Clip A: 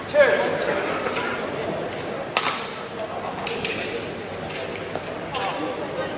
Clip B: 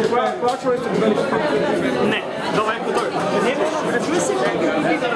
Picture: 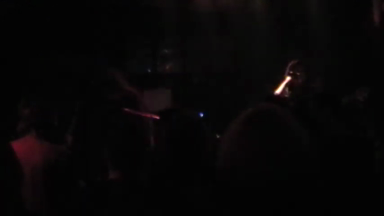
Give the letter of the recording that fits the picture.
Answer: B